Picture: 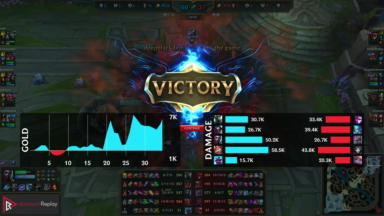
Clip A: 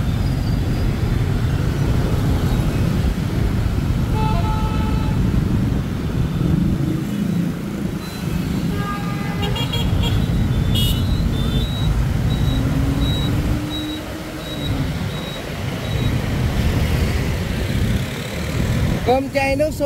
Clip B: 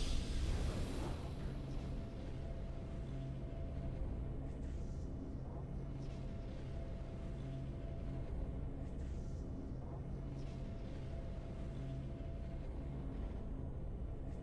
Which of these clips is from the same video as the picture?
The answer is B